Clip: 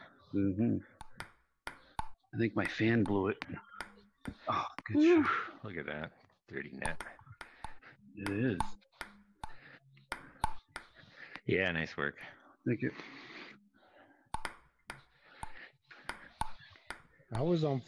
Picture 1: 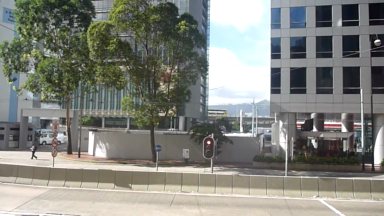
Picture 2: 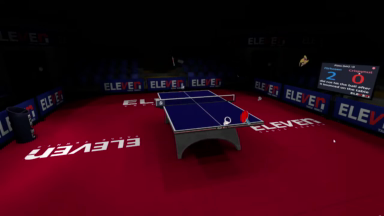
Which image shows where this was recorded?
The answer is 2